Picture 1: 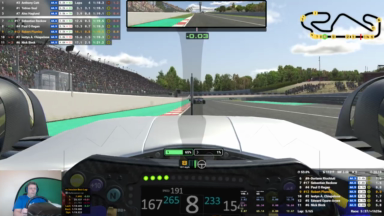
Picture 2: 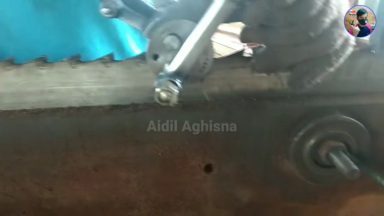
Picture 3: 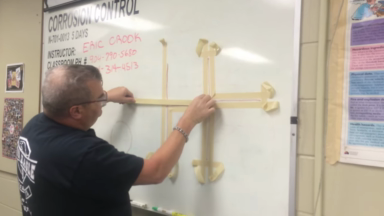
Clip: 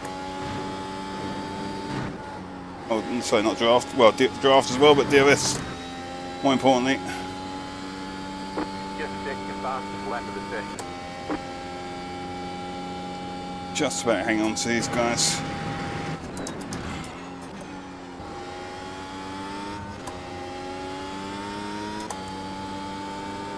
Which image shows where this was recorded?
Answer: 1